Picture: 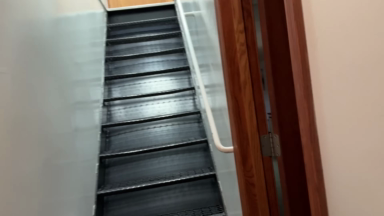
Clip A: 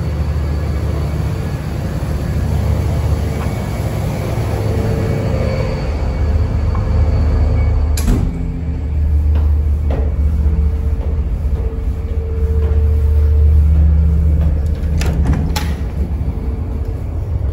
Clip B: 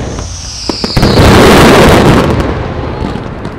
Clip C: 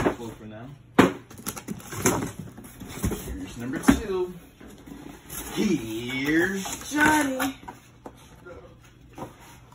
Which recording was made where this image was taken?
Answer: A